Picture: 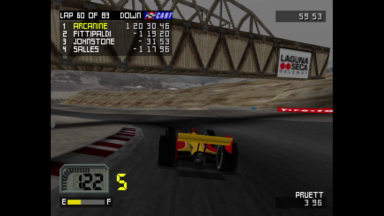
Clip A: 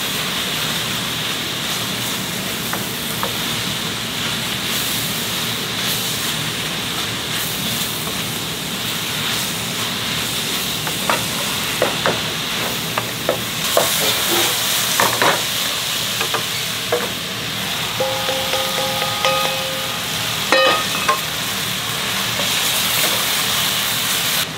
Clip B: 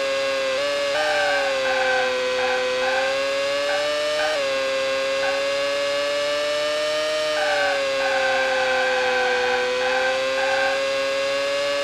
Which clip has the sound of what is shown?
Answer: B